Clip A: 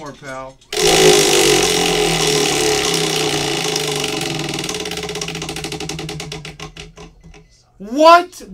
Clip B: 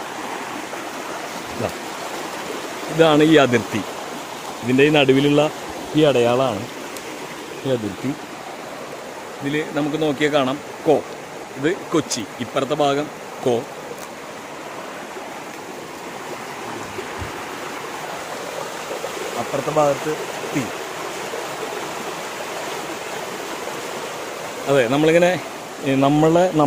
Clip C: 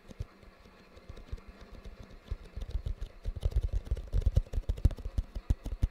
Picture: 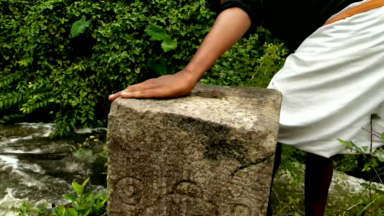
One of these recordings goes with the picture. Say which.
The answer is B